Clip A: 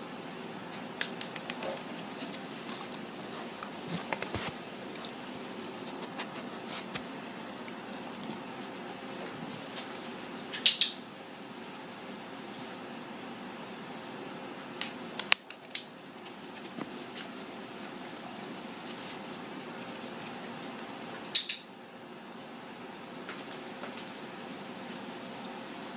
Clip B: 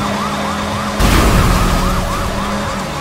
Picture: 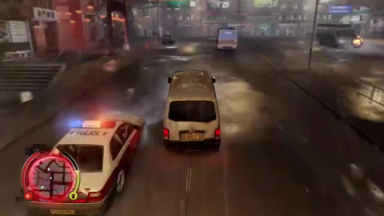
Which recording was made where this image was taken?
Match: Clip B